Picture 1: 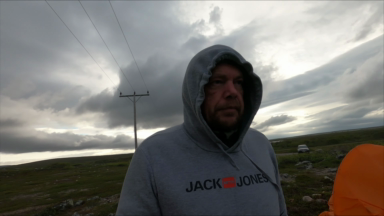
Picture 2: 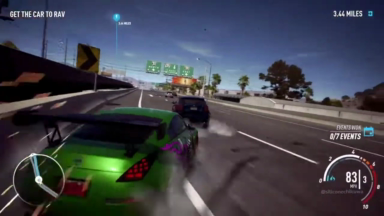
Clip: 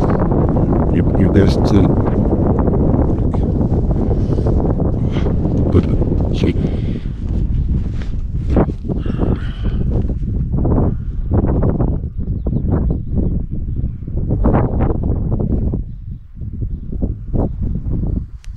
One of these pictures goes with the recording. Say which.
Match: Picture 1